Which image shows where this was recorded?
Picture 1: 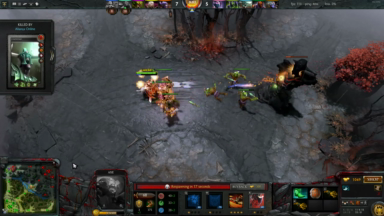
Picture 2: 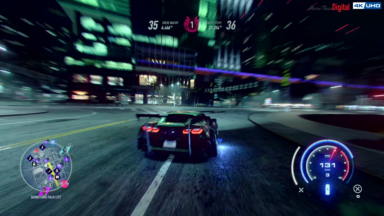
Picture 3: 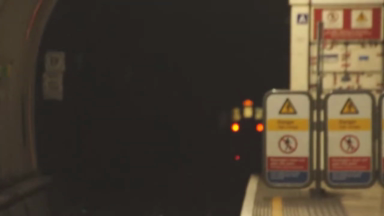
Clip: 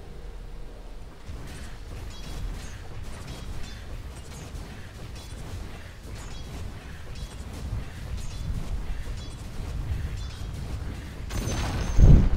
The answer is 1